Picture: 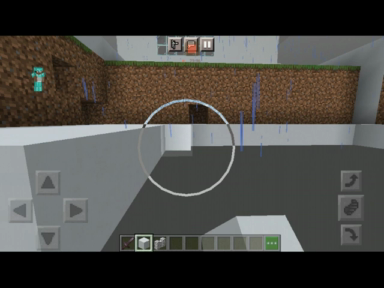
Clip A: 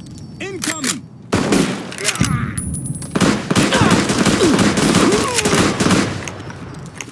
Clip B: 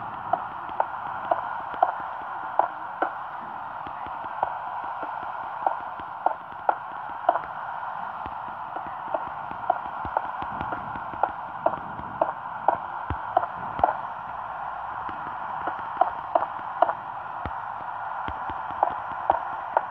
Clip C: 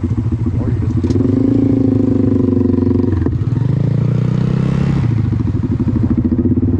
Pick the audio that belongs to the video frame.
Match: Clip B